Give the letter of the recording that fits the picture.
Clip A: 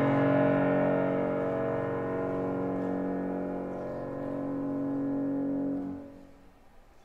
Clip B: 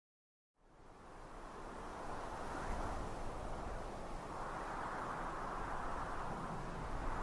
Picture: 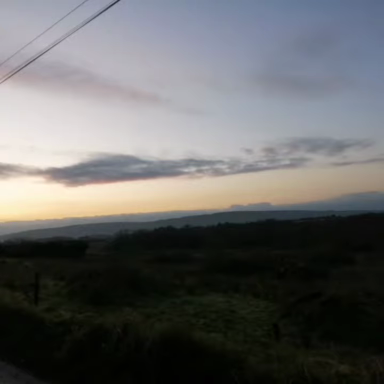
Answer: B